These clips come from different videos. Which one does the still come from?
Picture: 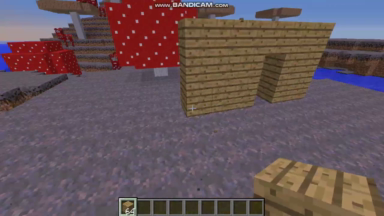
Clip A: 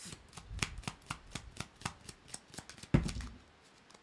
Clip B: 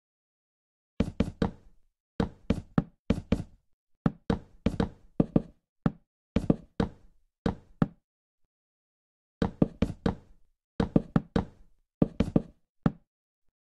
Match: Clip B